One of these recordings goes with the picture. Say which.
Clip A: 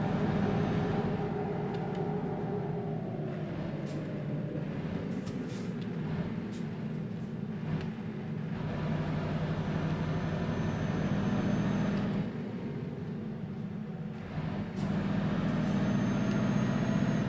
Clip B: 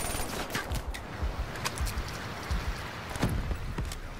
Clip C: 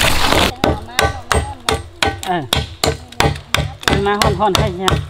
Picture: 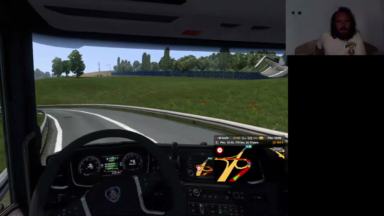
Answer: A